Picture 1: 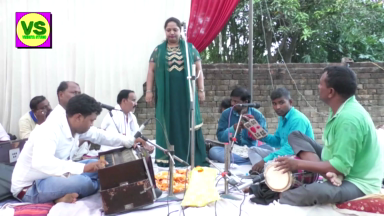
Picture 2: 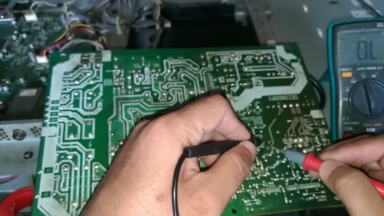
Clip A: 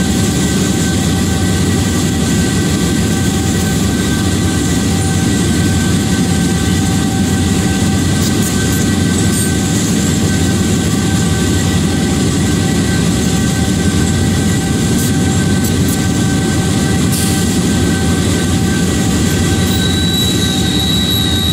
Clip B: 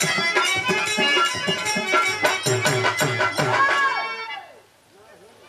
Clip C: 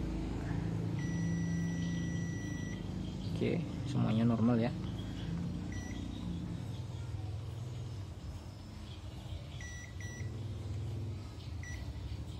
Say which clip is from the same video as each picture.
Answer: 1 B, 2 C